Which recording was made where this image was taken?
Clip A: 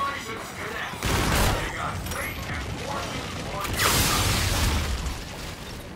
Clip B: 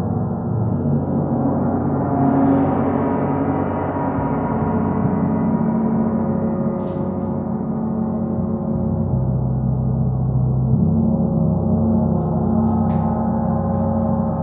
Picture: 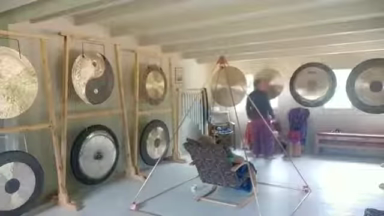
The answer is B